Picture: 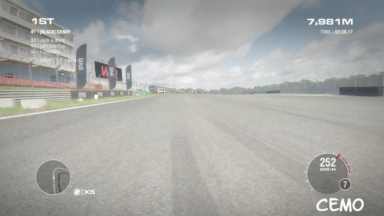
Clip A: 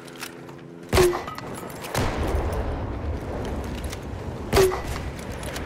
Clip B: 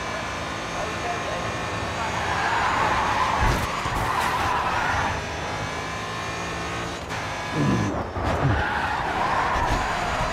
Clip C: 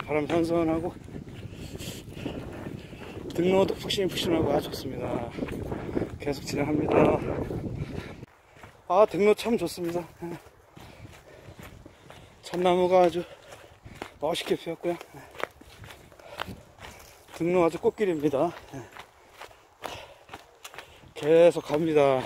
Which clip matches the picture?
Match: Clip B